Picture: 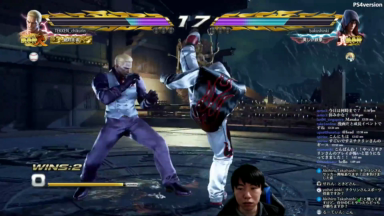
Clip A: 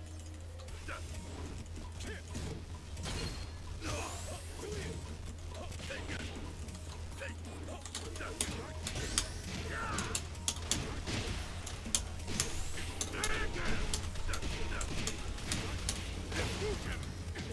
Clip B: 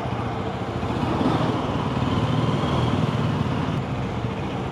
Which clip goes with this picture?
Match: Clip A